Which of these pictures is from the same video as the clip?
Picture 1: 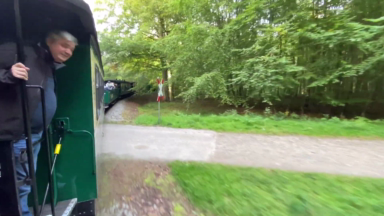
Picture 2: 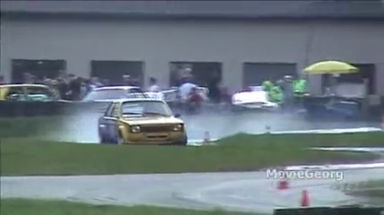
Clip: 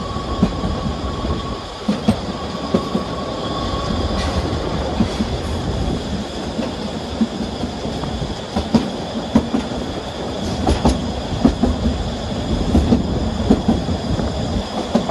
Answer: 1